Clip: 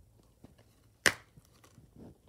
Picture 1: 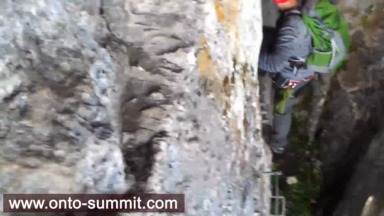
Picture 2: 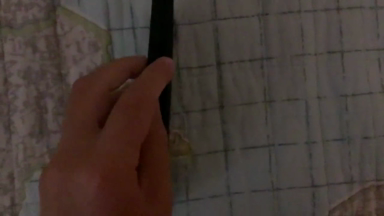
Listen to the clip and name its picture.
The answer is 2